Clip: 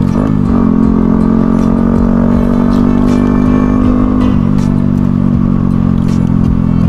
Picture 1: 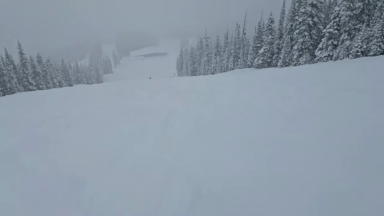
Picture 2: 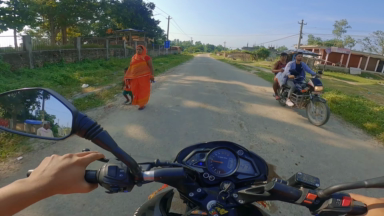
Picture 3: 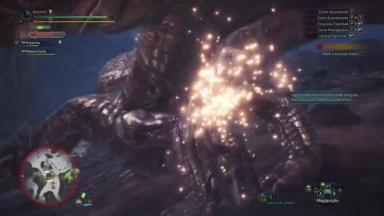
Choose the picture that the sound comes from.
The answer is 2